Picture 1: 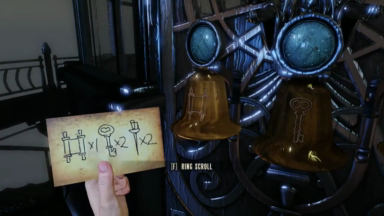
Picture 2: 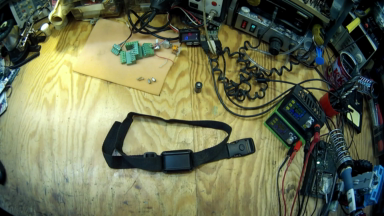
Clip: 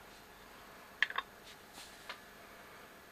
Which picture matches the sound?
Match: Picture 2